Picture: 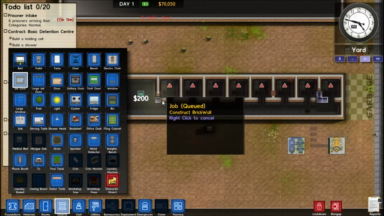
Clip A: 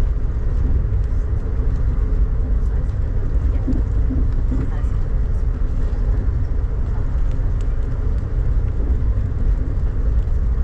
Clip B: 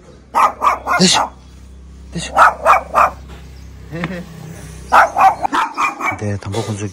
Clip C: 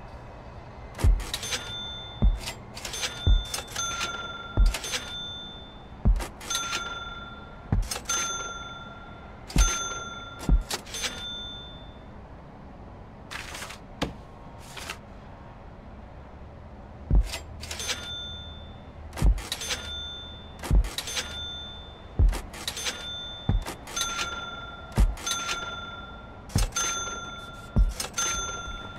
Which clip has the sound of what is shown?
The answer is C